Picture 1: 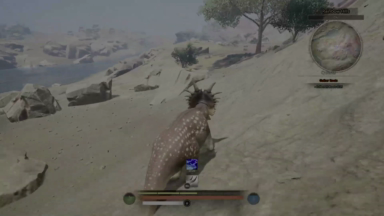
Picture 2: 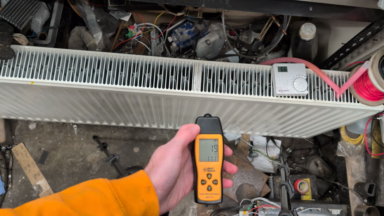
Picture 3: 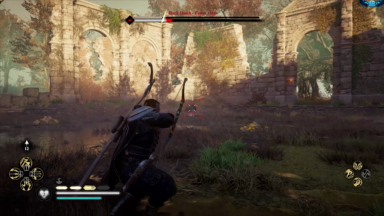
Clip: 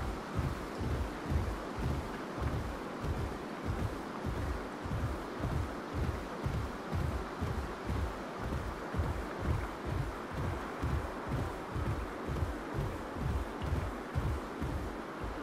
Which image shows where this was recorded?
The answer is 1